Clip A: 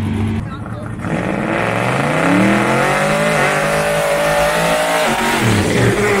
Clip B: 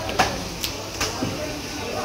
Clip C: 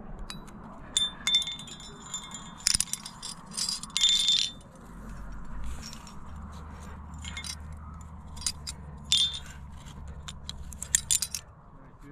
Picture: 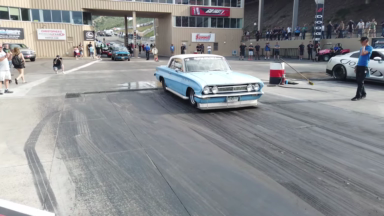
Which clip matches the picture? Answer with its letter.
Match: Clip A